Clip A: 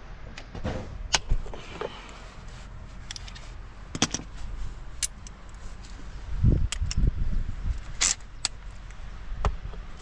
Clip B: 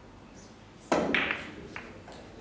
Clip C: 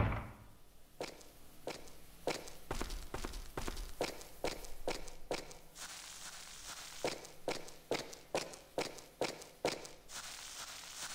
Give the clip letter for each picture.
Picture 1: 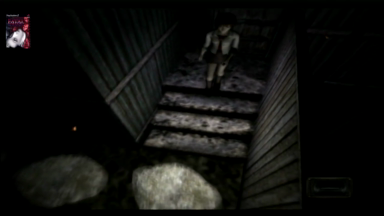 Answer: C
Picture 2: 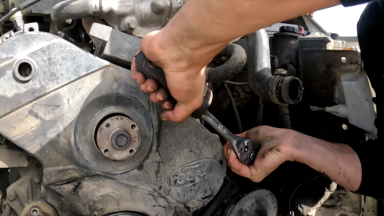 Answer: A